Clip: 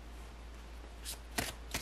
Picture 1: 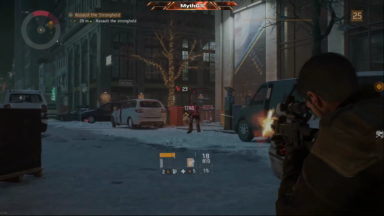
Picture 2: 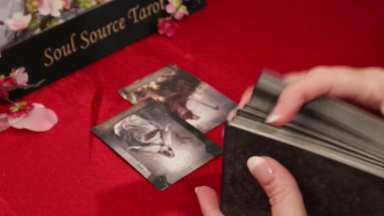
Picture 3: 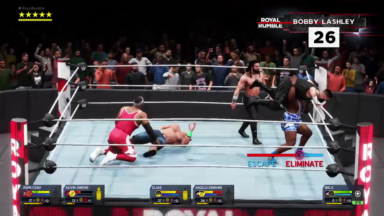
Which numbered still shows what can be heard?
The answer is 2